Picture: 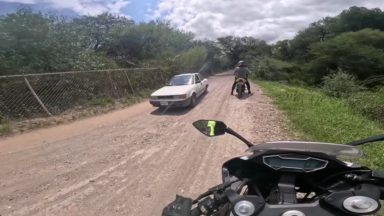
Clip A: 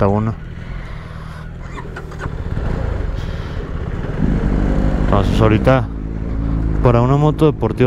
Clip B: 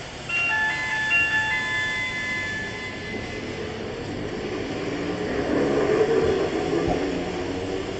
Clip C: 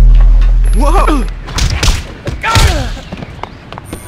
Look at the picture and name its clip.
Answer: A